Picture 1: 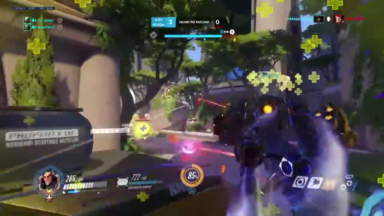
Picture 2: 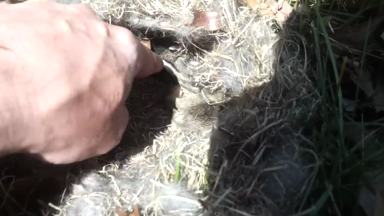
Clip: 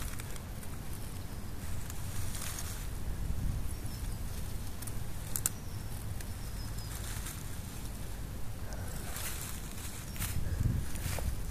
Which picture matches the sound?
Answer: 2